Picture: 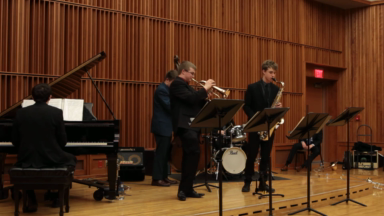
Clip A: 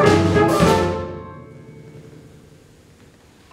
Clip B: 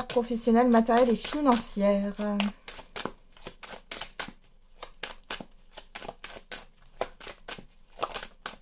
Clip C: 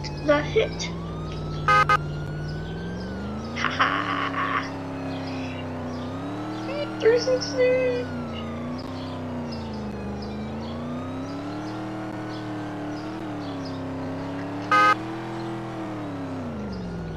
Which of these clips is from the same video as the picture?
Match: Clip A